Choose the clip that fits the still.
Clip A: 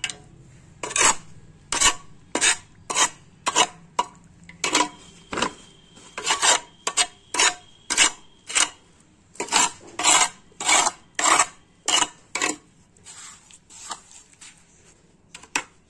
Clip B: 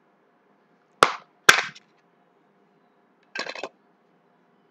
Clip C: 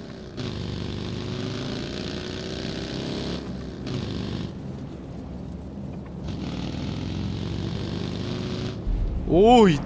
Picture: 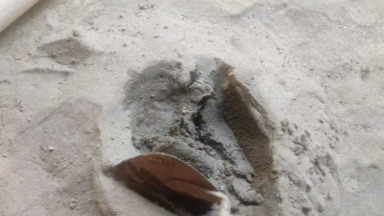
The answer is A